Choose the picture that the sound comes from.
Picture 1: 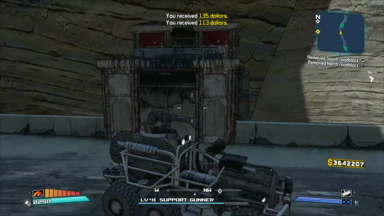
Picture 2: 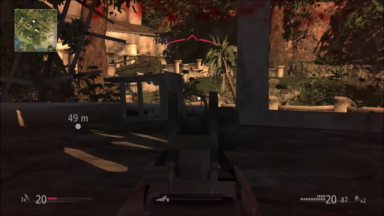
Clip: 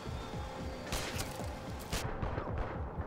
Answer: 2